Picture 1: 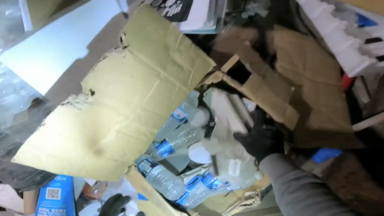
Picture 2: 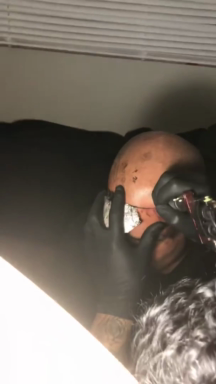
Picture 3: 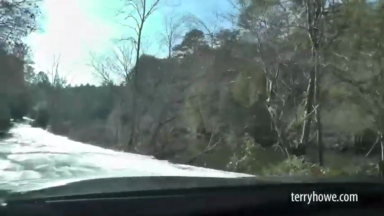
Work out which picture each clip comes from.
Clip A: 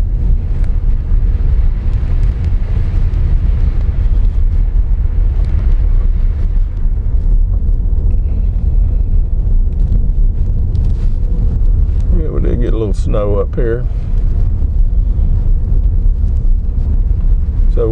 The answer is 3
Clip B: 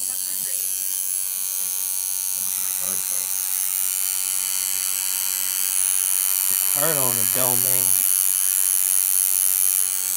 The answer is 2